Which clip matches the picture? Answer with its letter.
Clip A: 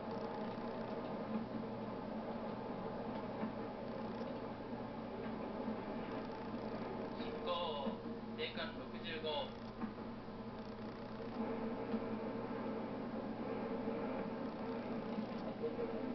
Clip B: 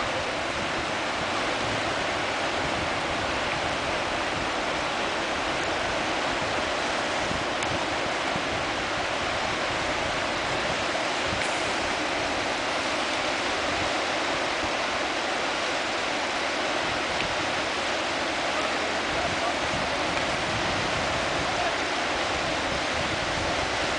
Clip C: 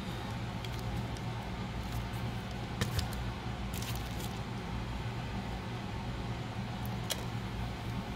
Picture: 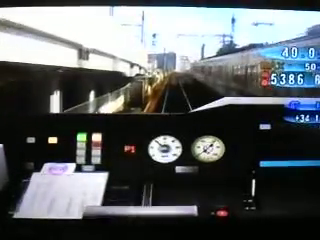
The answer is A